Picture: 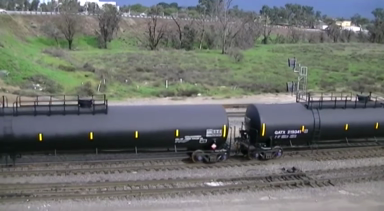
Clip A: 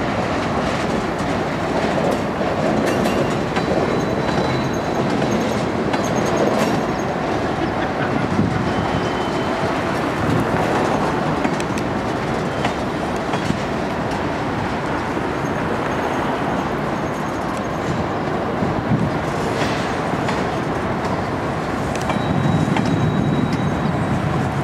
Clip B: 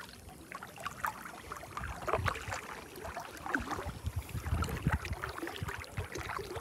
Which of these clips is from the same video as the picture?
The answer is A